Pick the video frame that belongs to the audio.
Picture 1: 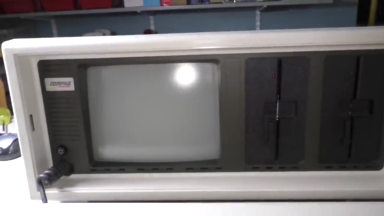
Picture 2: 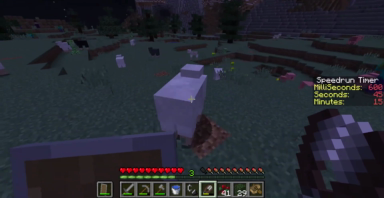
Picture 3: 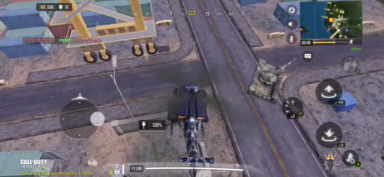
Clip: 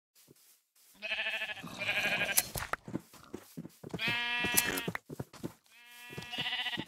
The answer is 2